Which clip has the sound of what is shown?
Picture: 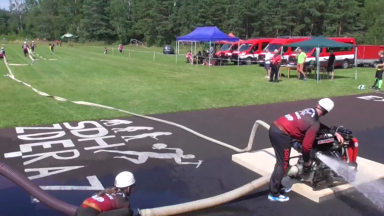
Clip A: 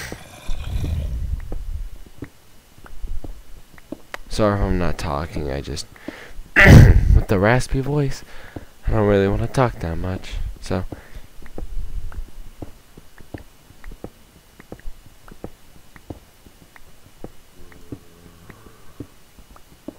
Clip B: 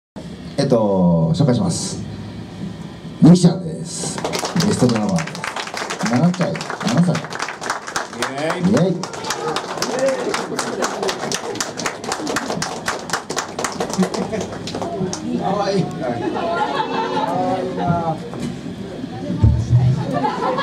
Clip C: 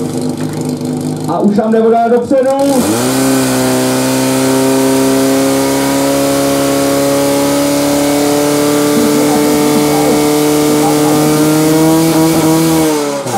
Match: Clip C